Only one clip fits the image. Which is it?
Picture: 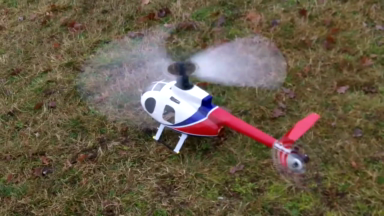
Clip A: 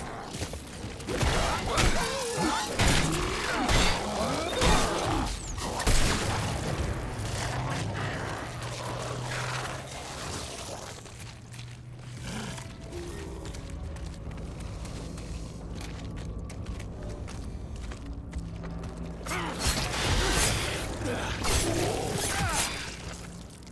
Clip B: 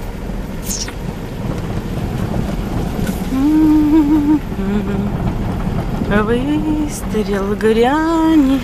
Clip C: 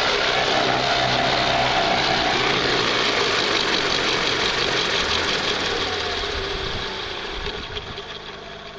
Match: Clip C